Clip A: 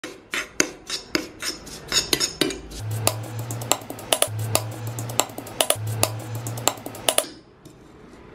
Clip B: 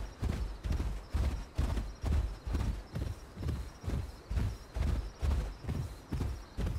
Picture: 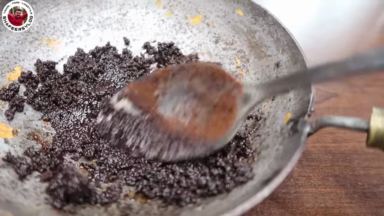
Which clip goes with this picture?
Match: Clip A